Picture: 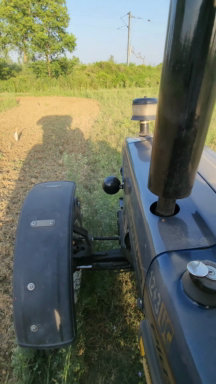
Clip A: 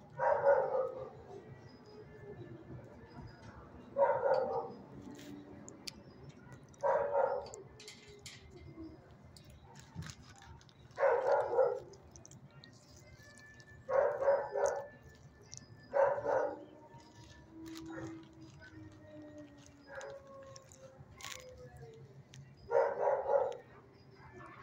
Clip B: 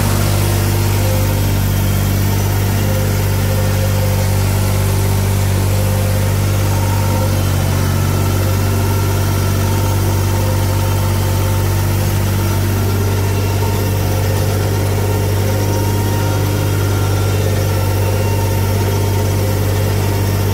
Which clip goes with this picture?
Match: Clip B